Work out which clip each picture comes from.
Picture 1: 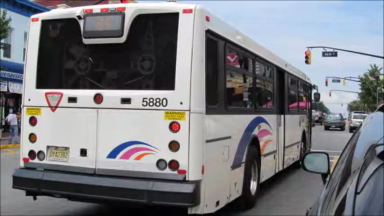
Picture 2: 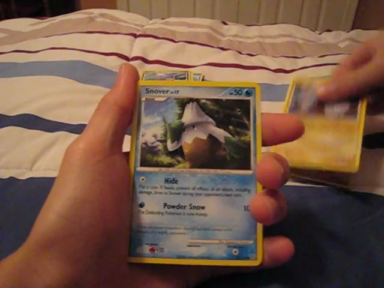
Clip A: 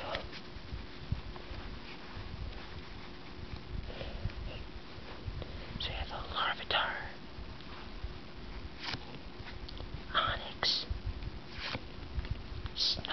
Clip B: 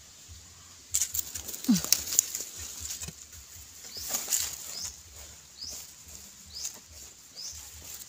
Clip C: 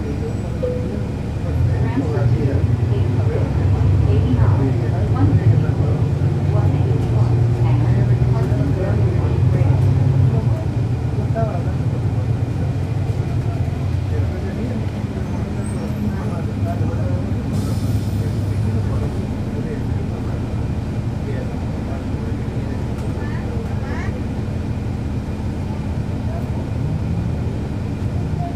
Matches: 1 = C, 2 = A